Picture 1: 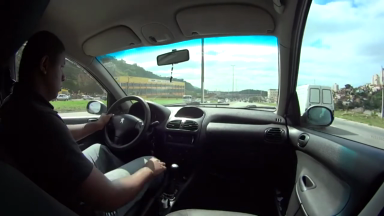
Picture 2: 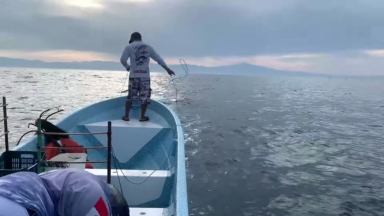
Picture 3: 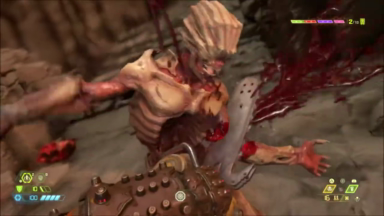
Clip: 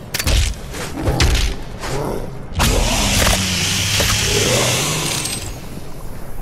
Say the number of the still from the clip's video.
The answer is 3